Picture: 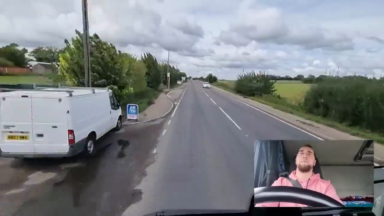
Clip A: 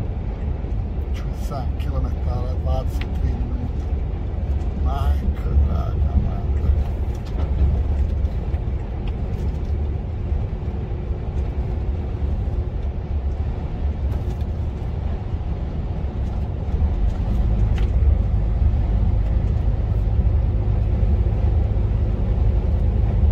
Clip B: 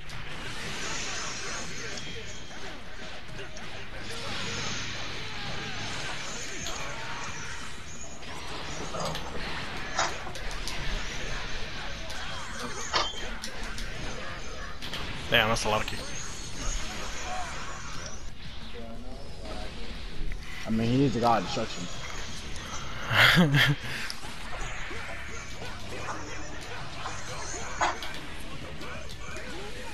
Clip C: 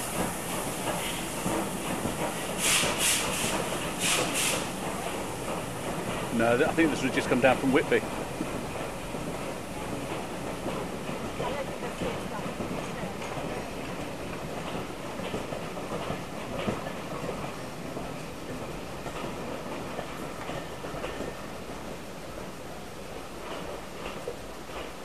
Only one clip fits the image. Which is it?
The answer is A